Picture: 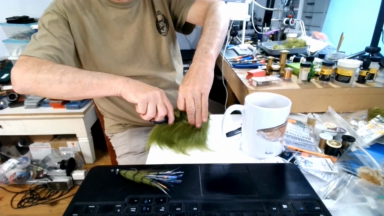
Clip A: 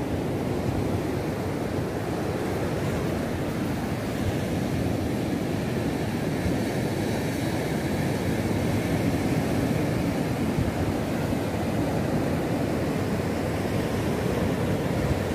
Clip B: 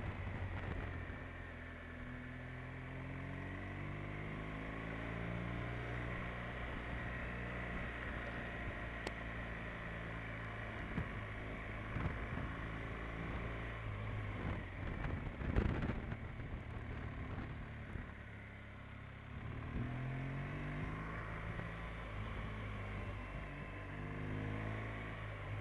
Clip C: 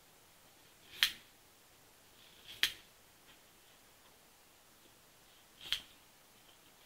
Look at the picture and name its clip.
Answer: C